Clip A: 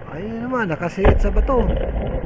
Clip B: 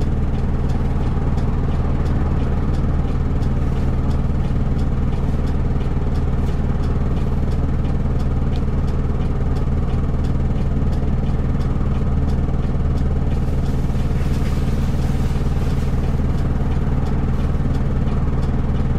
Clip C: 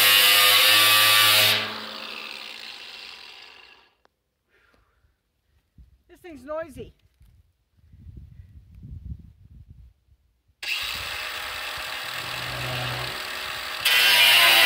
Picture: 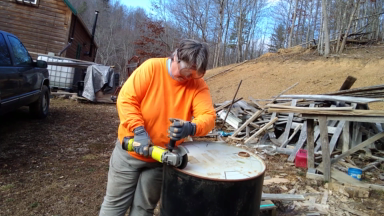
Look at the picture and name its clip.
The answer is C